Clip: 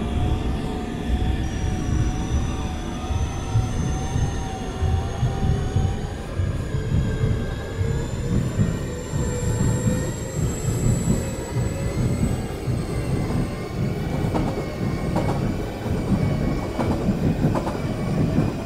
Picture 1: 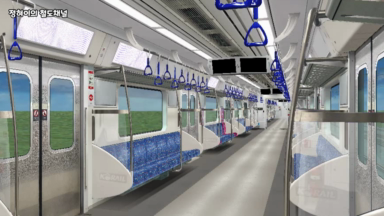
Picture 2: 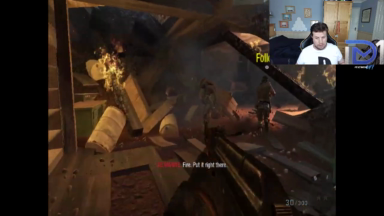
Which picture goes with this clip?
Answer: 1